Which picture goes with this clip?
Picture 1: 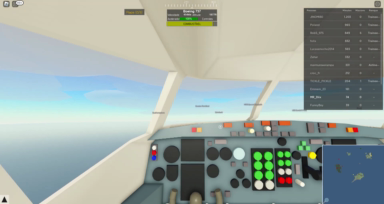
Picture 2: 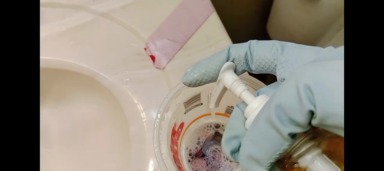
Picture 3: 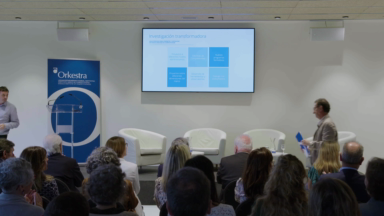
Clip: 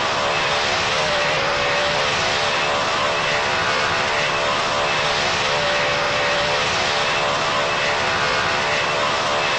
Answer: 1